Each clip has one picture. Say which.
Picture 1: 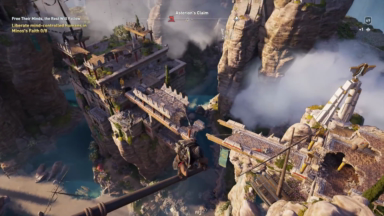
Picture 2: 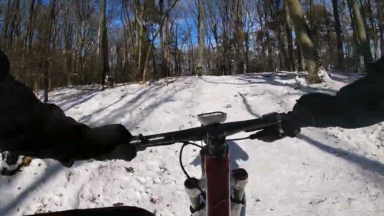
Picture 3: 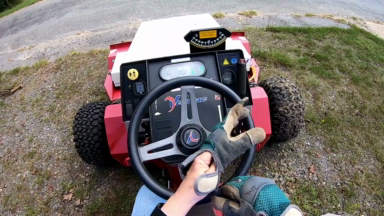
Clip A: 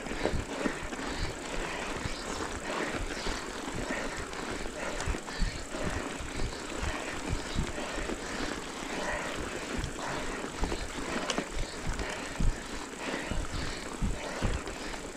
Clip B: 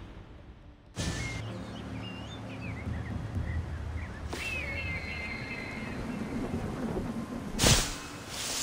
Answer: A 2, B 1